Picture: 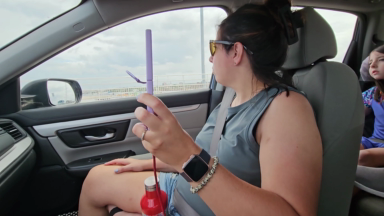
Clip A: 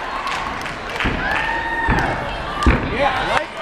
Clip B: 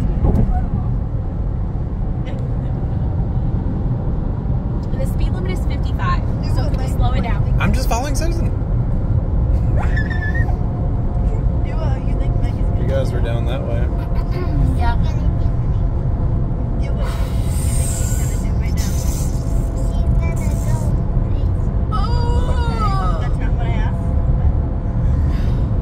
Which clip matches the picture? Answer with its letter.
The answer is B